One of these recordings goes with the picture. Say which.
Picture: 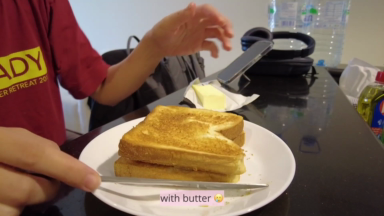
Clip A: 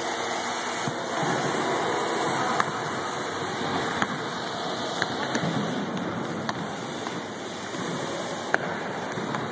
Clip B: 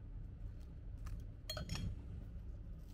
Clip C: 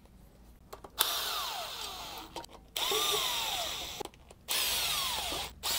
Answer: B